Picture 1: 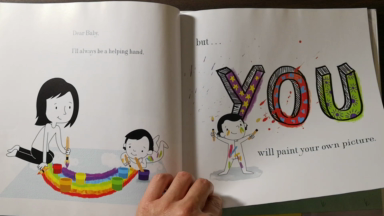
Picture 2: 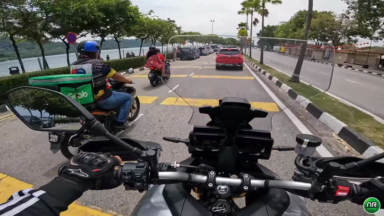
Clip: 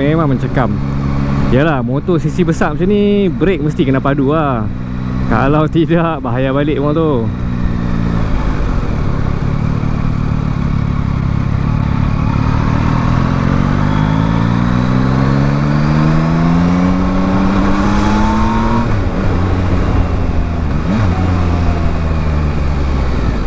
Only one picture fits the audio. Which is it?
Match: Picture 2